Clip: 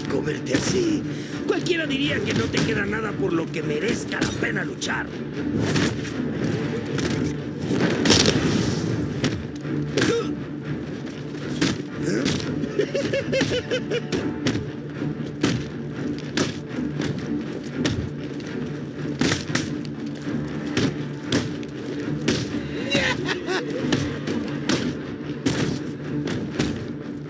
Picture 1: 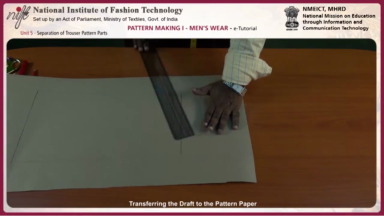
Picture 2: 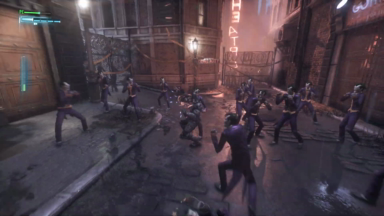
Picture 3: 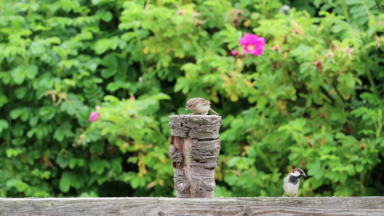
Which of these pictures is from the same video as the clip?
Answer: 2